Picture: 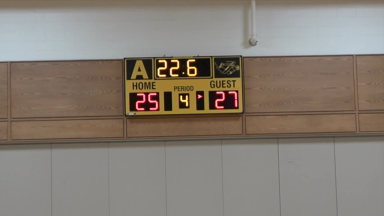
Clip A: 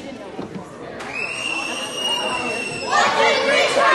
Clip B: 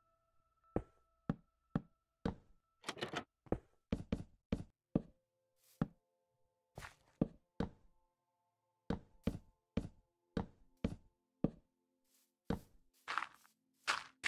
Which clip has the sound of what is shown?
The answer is A